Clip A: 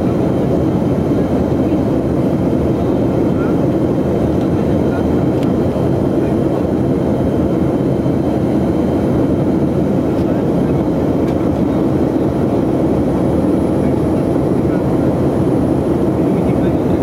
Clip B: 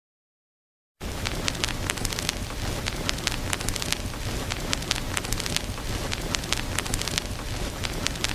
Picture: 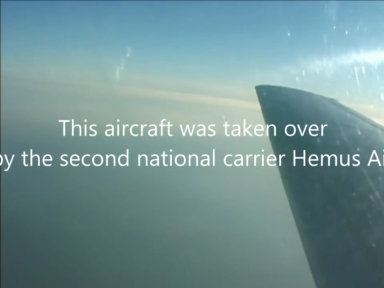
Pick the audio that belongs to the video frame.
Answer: A